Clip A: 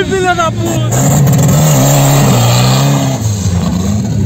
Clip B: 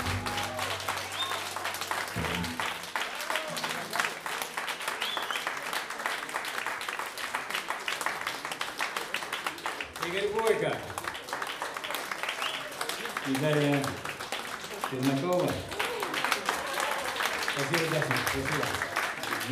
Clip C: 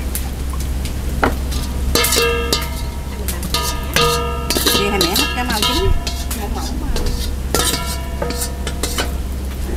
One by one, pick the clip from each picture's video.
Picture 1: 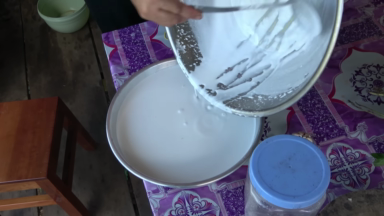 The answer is C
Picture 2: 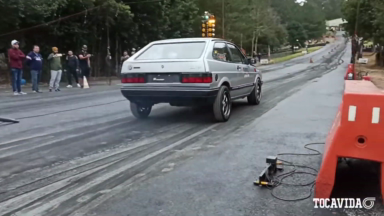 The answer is A